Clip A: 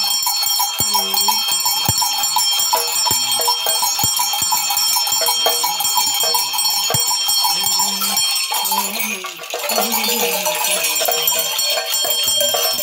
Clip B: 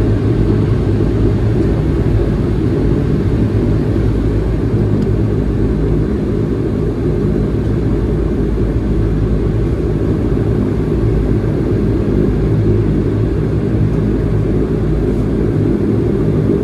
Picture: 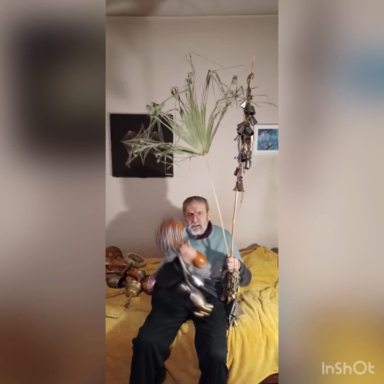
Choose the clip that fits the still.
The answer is A